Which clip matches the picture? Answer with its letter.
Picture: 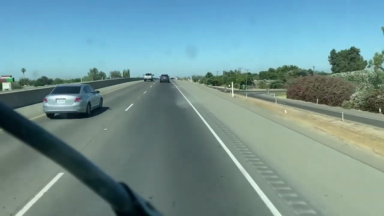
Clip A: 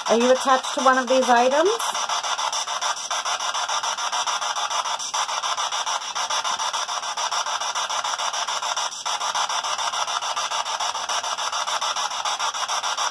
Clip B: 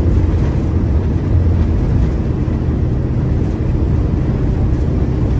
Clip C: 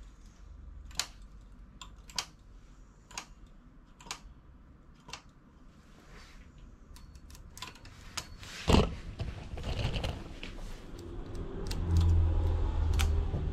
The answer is B